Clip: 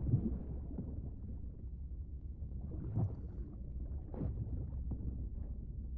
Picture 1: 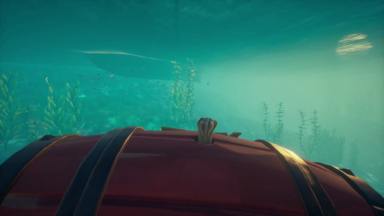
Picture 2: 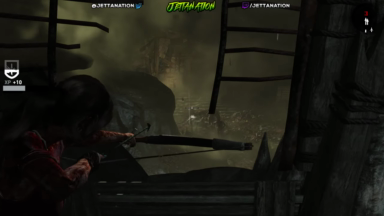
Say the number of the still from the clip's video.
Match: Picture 1